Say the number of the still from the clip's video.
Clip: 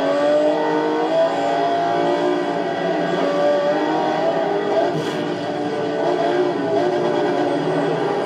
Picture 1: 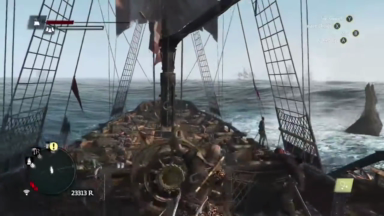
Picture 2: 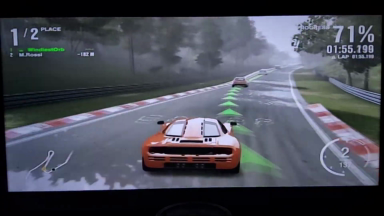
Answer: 2